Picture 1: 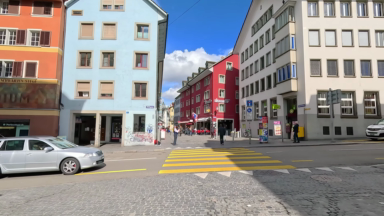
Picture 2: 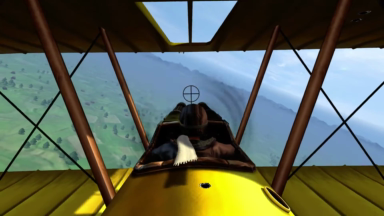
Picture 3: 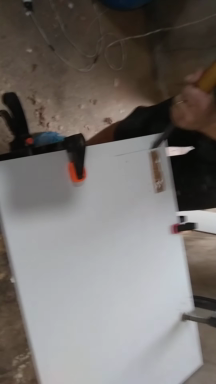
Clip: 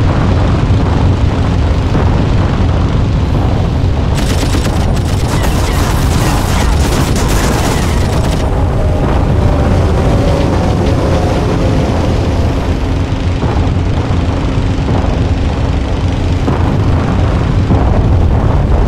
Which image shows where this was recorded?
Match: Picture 2